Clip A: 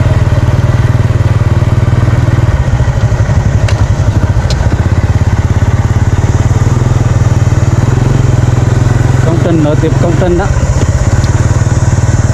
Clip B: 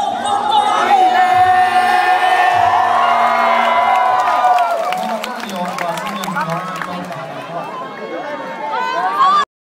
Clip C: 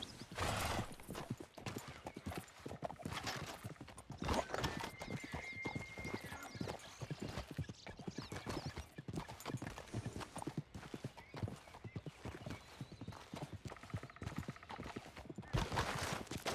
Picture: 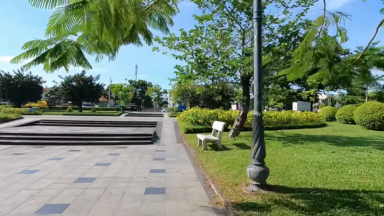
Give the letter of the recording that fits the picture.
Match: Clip A